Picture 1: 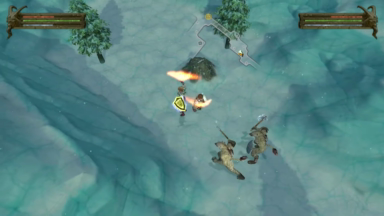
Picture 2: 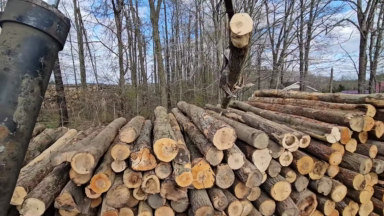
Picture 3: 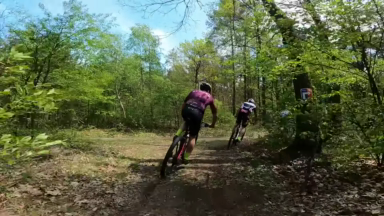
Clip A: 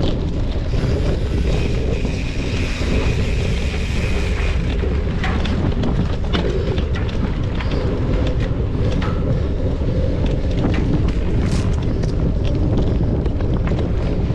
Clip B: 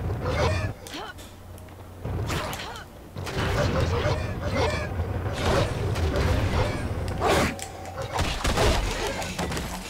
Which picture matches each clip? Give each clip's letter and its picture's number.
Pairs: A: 3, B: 1